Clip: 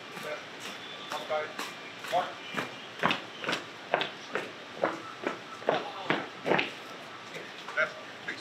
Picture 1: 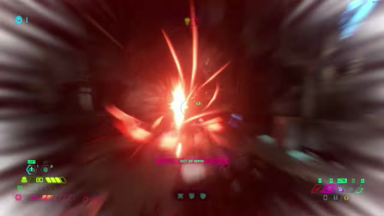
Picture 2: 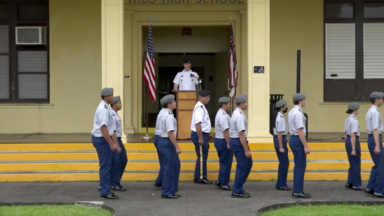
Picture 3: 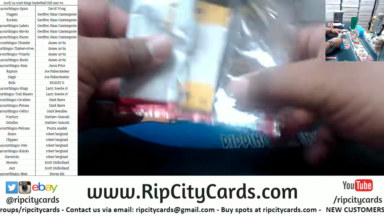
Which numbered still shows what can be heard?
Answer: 2